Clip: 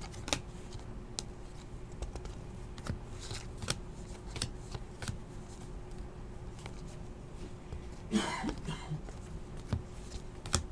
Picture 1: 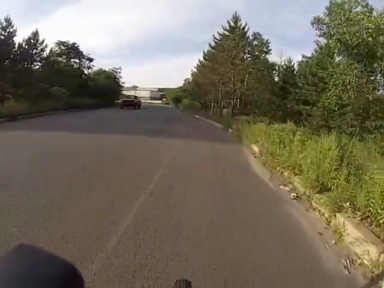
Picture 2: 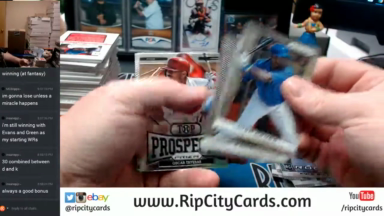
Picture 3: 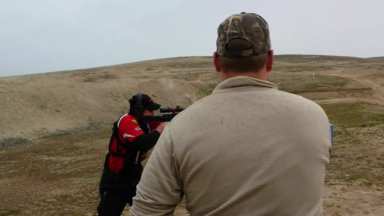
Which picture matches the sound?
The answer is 2